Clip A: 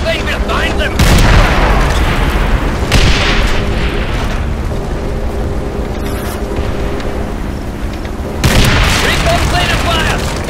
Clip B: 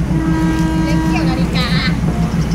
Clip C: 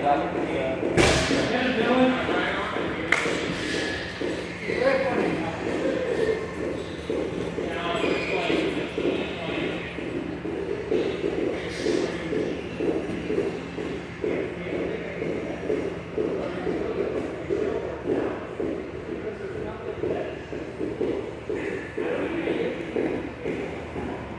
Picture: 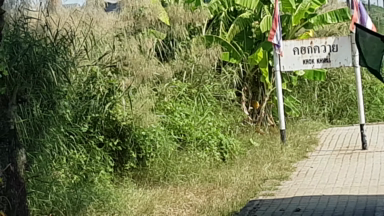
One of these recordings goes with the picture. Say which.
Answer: B